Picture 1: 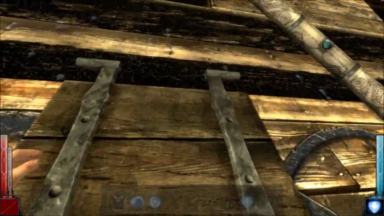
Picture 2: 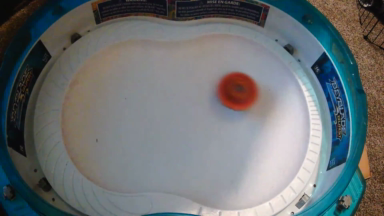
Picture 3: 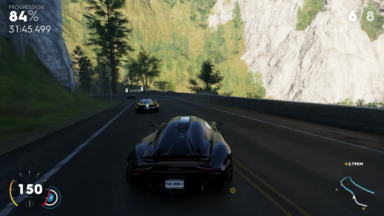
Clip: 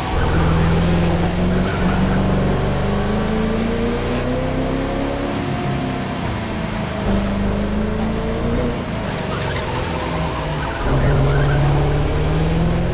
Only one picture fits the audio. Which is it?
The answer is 3